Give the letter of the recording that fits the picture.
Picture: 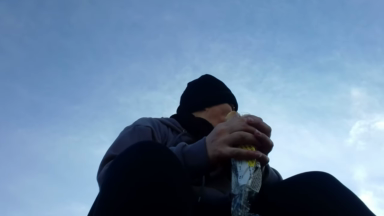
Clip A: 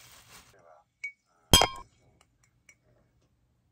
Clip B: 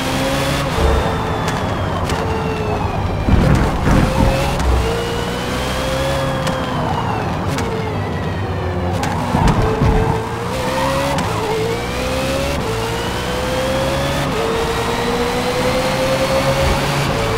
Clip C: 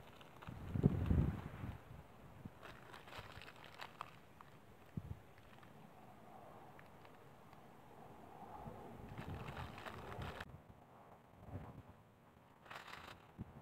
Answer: C